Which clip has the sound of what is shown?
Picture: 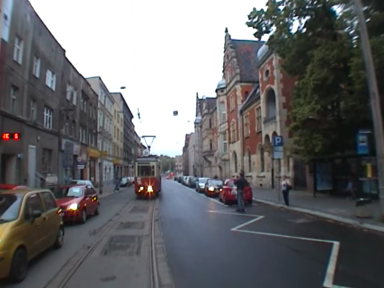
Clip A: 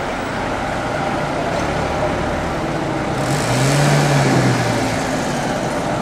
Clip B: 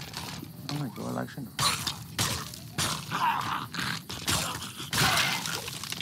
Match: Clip A